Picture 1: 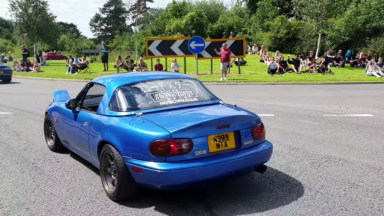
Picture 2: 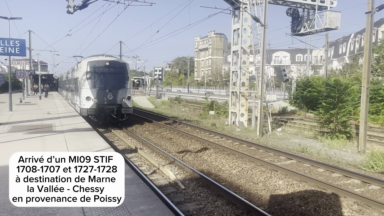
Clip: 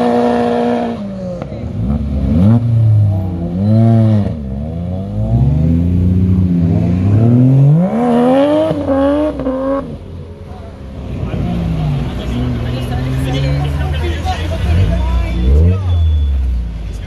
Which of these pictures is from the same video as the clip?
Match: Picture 1